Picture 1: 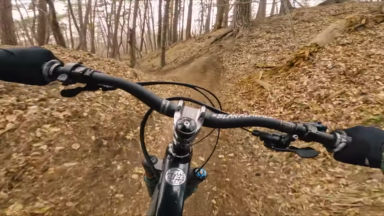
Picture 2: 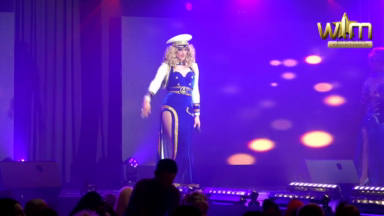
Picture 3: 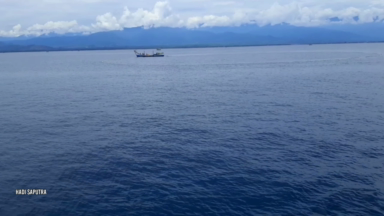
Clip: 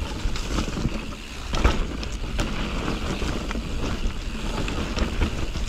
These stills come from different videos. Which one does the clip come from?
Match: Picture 1